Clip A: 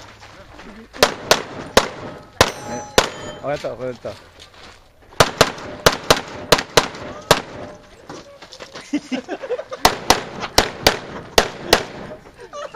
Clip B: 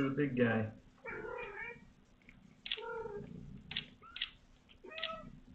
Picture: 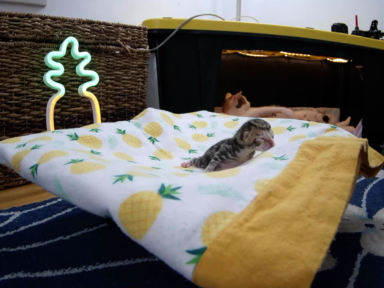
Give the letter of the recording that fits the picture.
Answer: B